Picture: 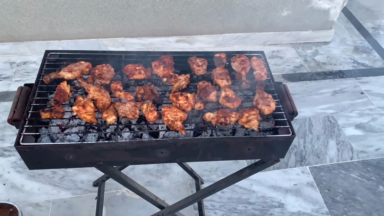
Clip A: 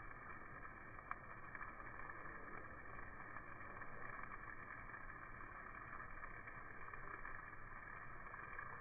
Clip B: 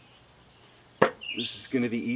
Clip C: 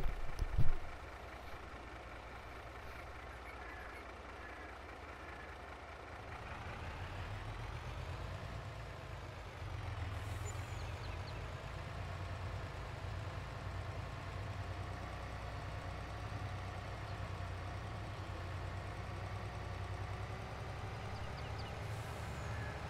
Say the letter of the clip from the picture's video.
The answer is A